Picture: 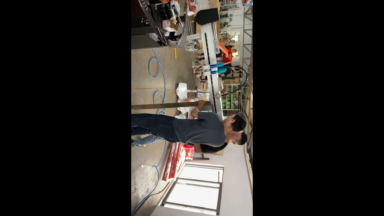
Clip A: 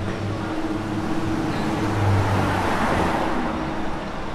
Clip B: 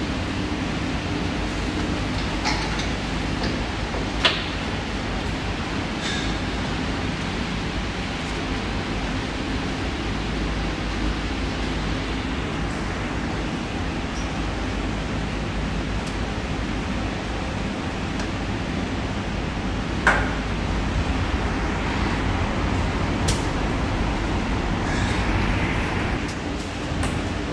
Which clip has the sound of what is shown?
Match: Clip B